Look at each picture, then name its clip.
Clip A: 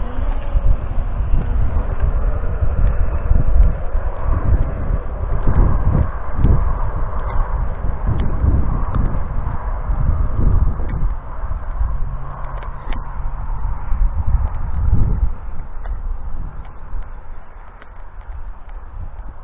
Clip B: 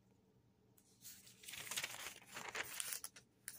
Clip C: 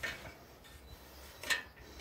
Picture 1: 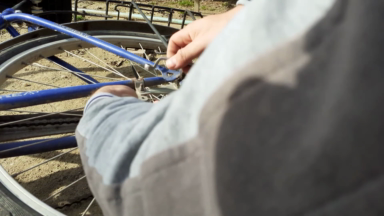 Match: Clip C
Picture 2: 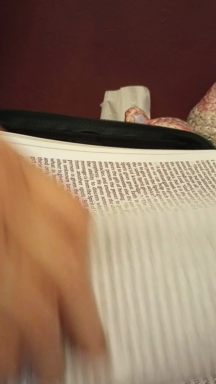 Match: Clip B